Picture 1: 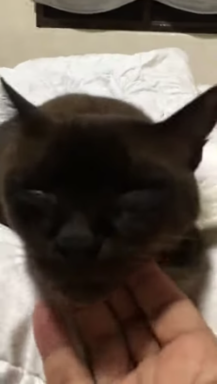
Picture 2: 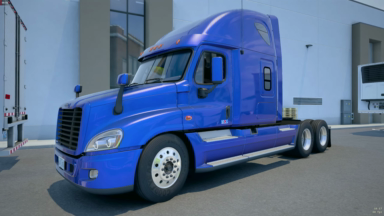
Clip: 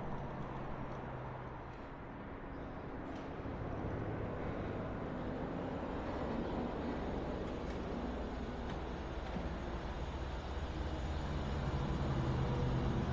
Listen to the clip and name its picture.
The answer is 2